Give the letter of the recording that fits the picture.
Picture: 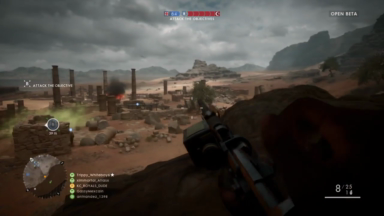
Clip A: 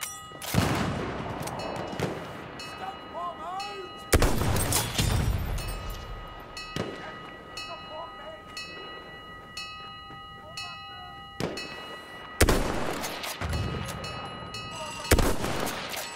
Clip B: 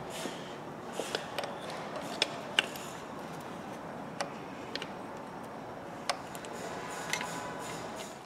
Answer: A